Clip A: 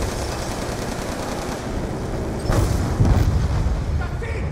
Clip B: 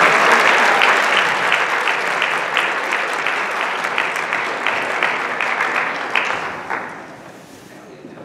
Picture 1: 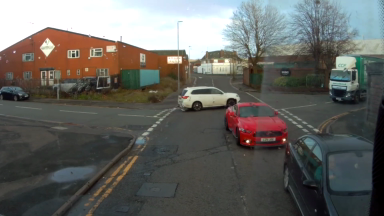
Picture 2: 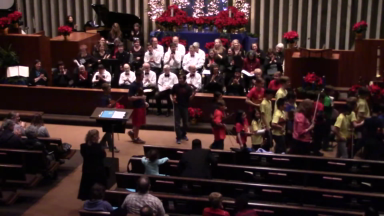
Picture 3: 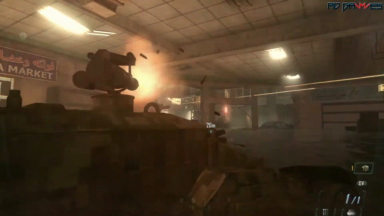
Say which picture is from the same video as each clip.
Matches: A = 3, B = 2